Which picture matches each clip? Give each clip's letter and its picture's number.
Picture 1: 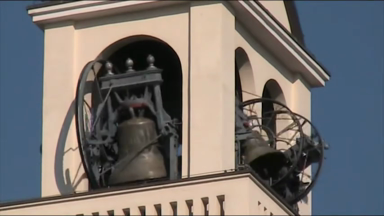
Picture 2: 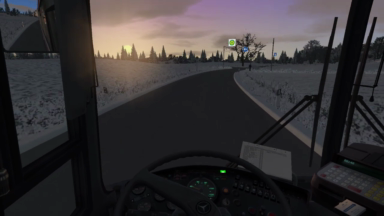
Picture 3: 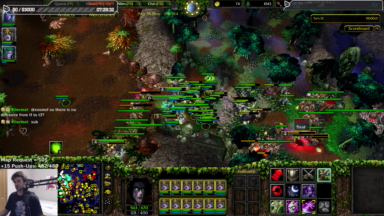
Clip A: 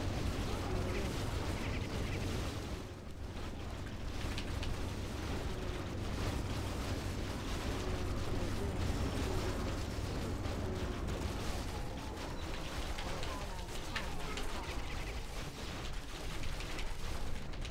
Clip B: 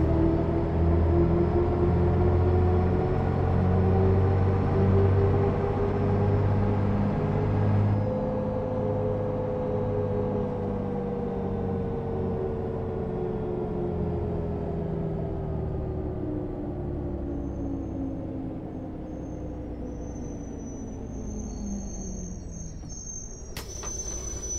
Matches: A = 3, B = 2